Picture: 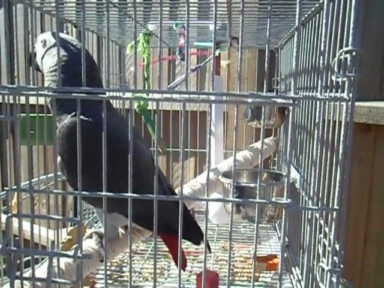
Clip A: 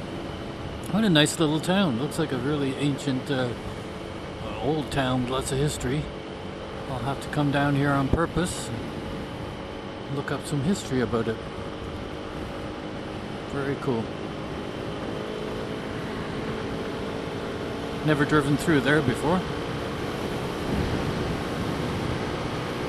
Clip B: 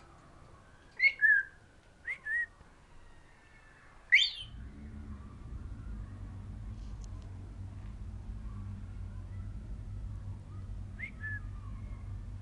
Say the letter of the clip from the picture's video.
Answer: B